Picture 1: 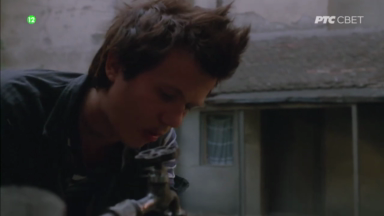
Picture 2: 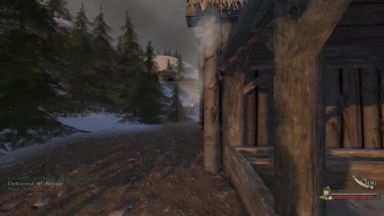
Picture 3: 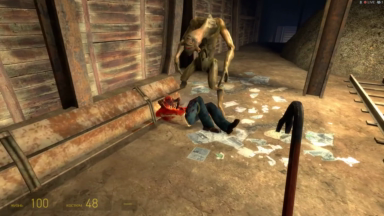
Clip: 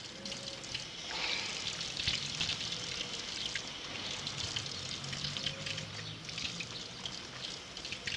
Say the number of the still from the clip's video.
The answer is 1